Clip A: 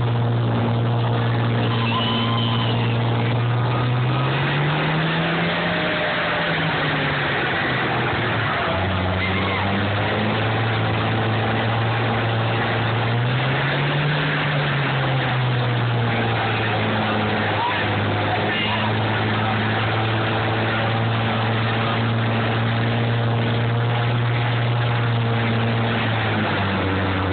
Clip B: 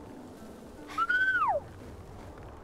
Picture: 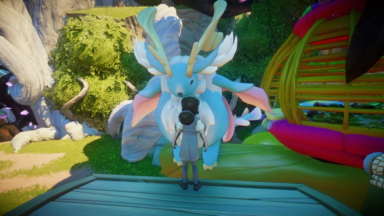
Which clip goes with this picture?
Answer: B